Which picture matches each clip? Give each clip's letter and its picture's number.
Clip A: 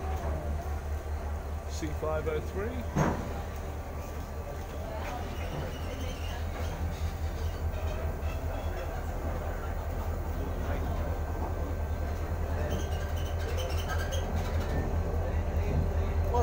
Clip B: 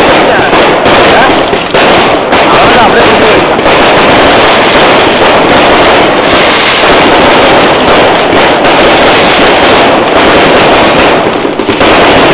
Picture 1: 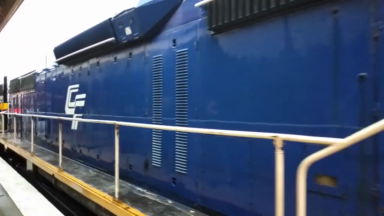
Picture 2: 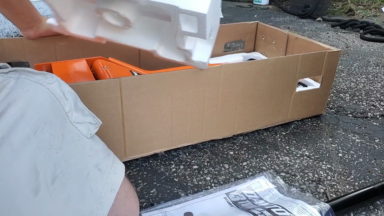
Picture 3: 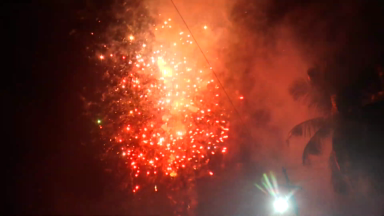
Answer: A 1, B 3